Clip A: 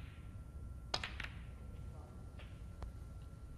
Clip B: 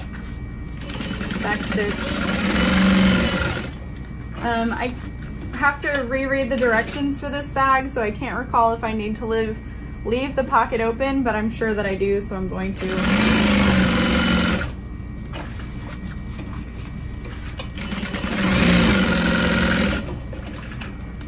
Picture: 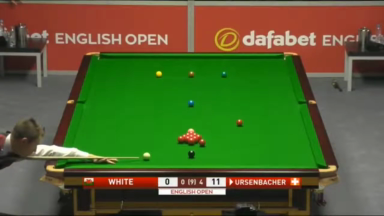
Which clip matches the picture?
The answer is A